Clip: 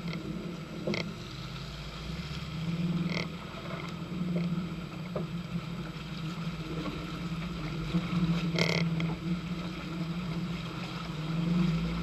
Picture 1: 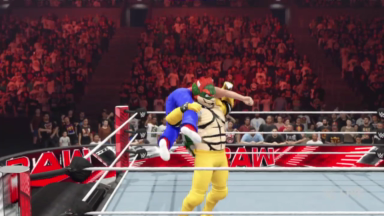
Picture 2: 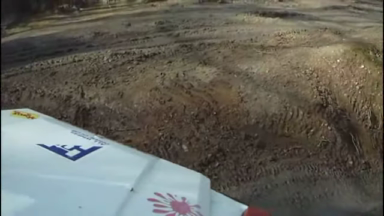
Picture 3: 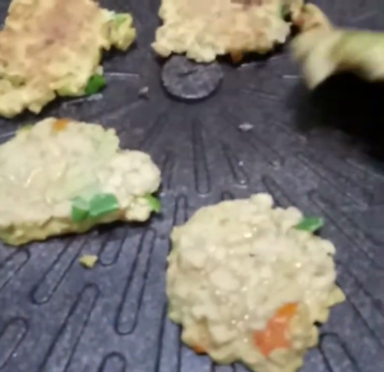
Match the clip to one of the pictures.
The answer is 2